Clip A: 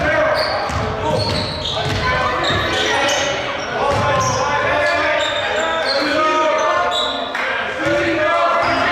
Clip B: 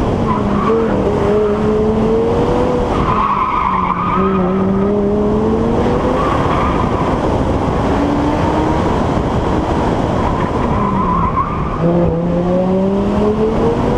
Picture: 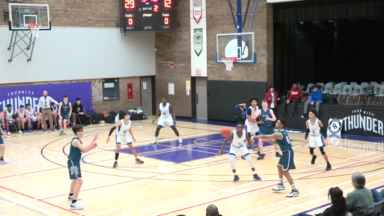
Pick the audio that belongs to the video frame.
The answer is A